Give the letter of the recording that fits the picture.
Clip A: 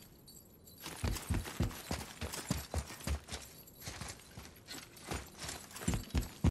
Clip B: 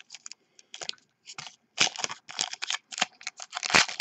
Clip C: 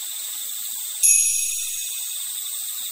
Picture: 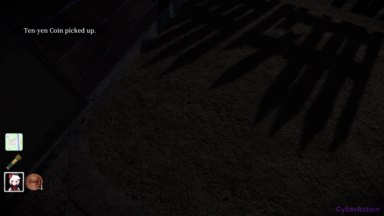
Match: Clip C